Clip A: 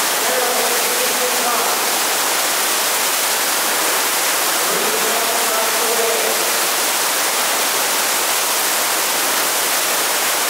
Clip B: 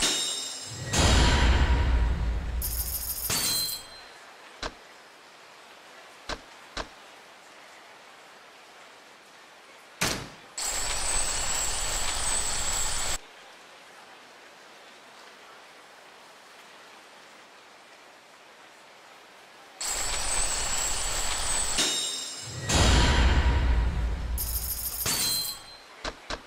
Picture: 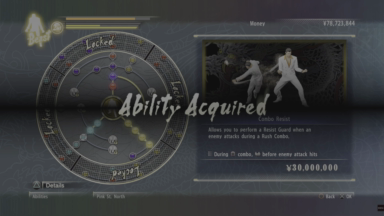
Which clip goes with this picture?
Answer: B